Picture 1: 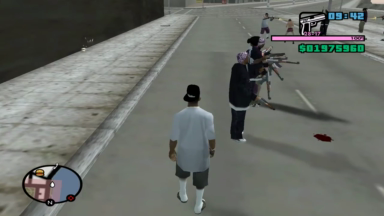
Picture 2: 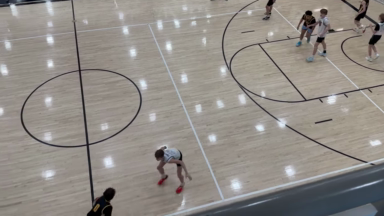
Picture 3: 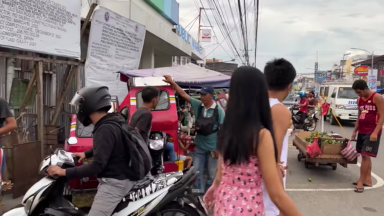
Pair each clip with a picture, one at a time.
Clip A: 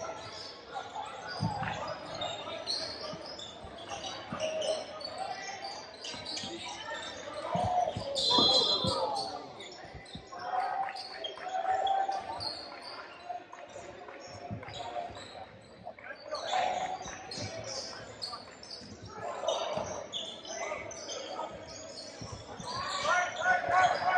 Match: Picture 2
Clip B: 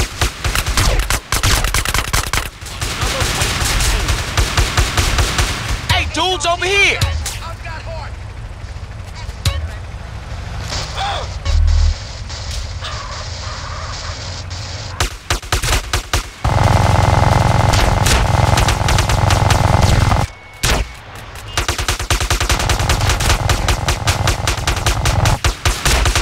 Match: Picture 1